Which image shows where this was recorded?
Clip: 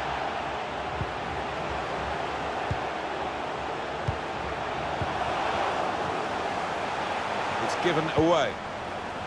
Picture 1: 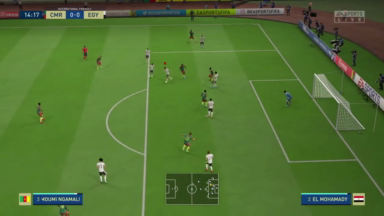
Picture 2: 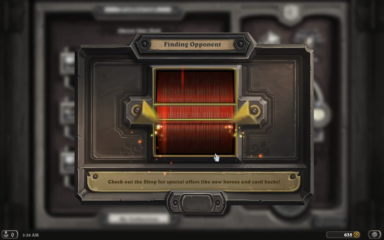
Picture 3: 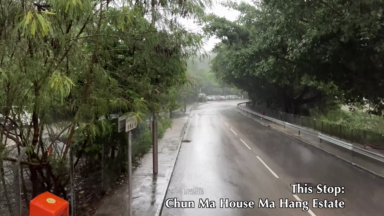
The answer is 1